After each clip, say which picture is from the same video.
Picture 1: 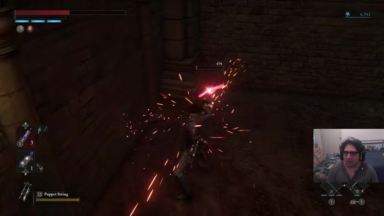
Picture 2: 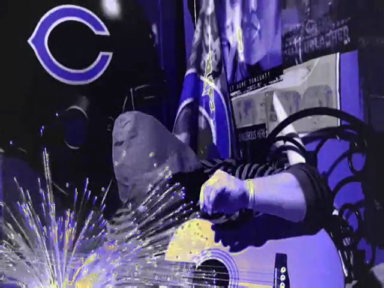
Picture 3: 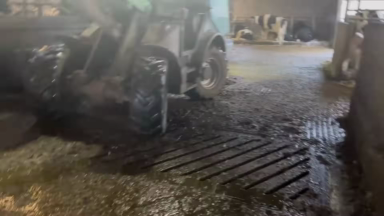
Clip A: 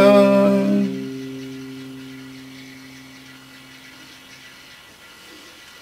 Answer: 2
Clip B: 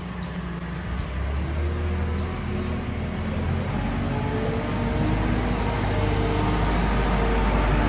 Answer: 3